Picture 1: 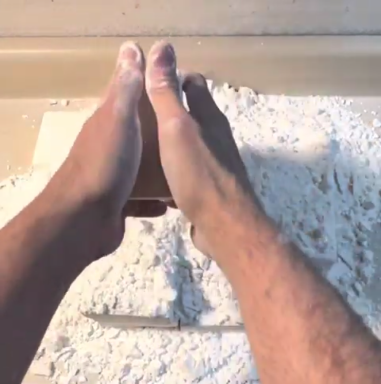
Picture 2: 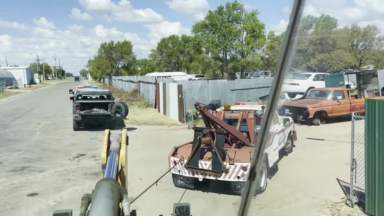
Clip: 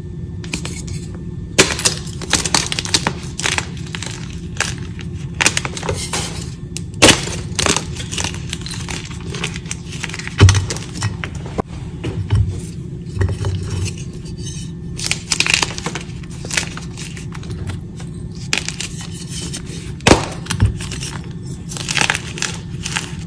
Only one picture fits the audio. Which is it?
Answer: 1